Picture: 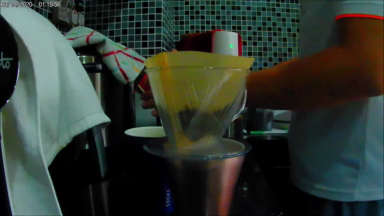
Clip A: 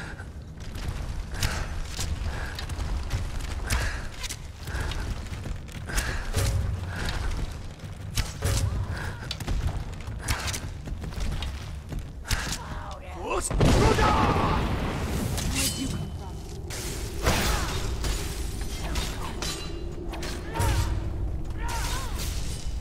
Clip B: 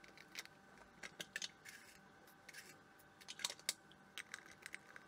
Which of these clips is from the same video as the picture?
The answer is B